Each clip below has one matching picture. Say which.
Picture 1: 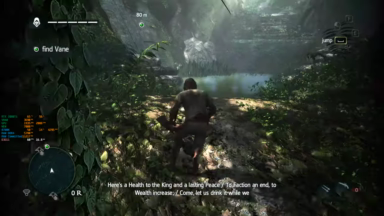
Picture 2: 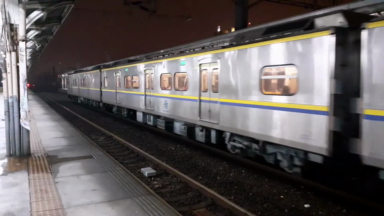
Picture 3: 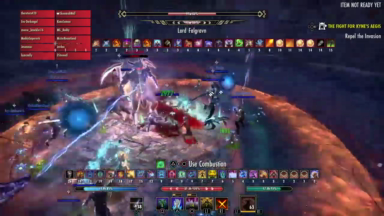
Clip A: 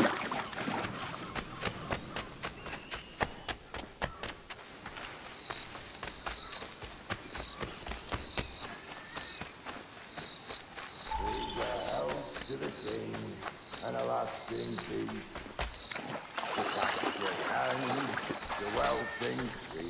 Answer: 1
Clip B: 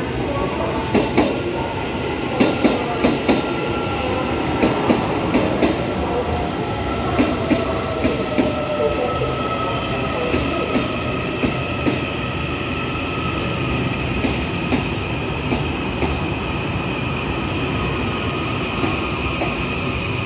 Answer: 2